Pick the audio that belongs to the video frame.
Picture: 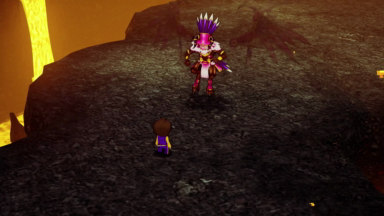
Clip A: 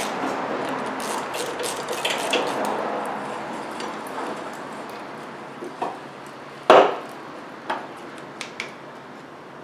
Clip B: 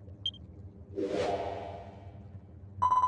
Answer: B